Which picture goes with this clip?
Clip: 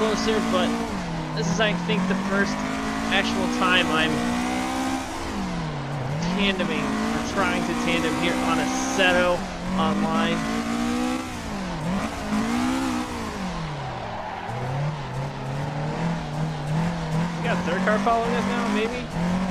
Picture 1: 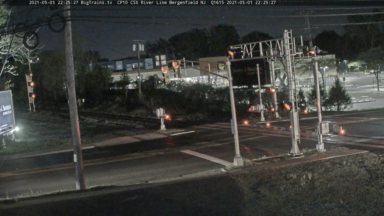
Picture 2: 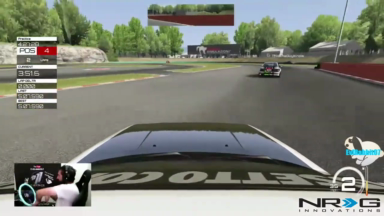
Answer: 2